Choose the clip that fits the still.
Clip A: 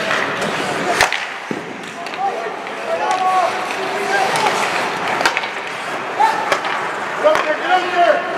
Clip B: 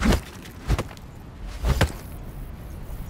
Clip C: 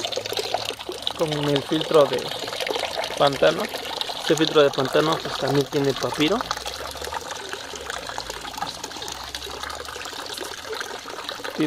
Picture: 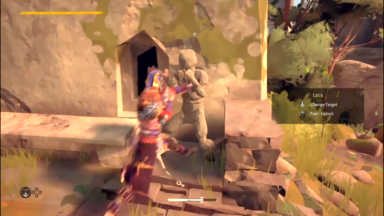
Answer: B